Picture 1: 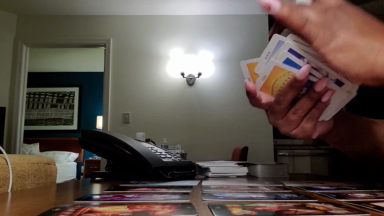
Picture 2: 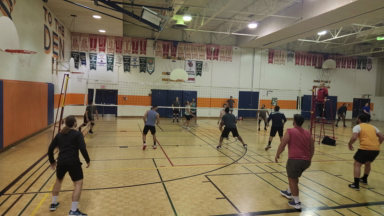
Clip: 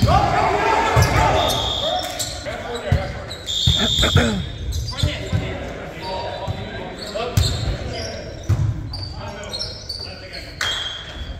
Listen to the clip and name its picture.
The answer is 2